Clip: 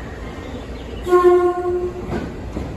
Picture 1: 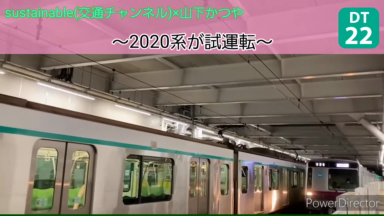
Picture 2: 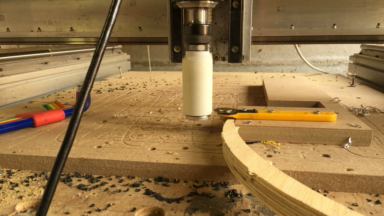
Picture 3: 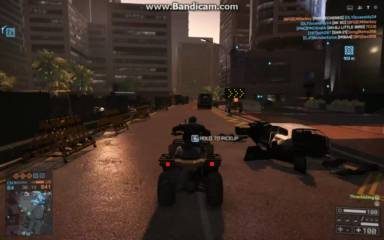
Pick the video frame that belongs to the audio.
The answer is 1